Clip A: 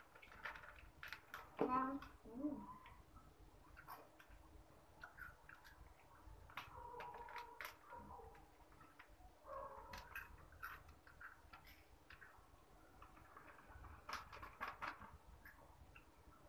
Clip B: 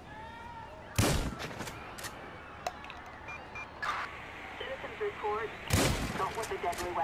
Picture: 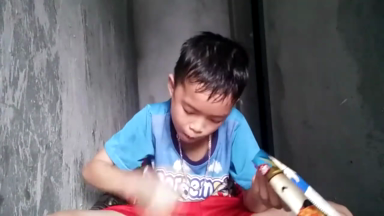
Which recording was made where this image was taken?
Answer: A